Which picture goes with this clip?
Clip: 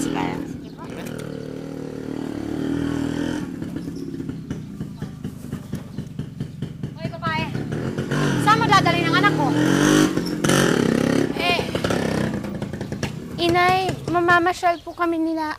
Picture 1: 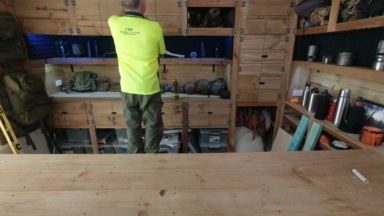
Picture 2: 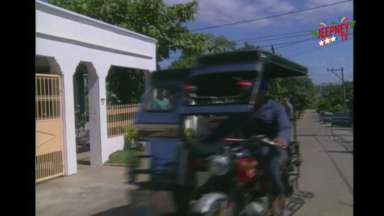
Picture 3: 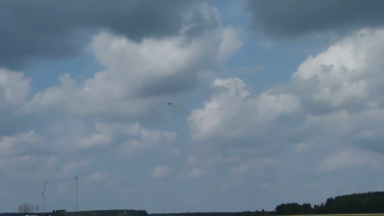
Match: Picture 2